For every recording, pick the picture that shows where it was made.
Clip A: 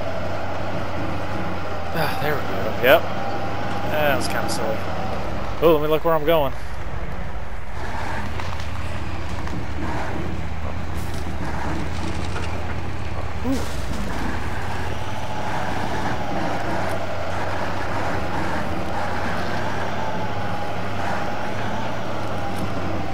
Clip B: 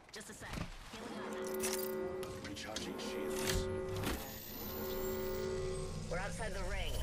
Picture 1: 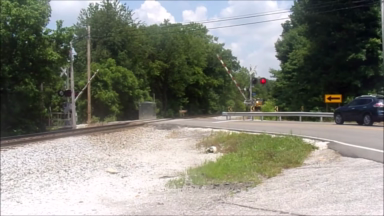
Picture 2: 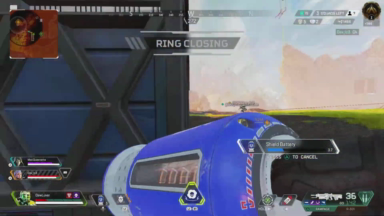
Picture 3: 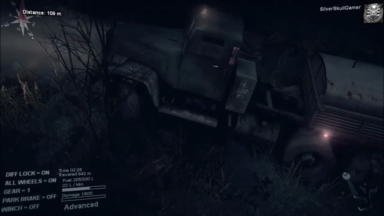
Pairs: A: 3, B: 2